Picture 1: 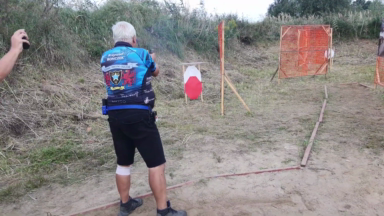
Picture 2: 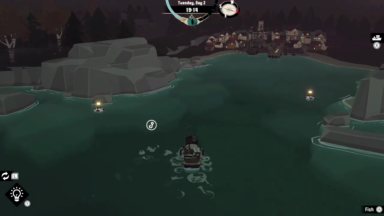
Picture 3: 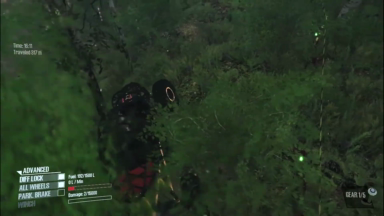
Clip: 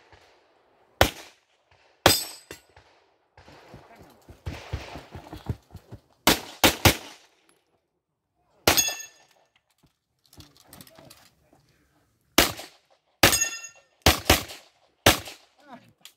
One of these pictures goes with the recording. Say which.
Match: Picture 1